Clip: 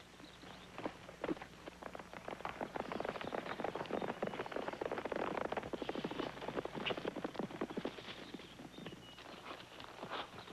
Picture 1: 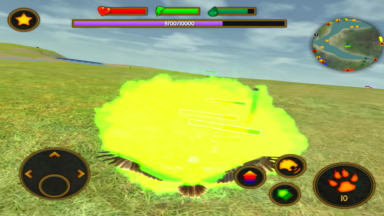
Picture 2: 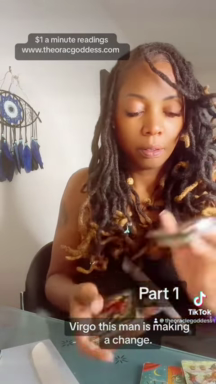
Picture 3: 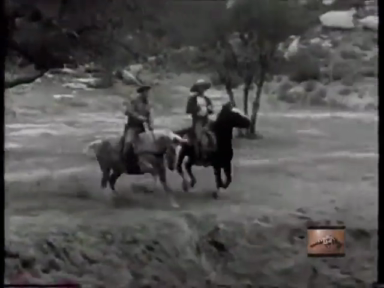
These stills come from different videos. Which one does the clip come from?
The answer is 3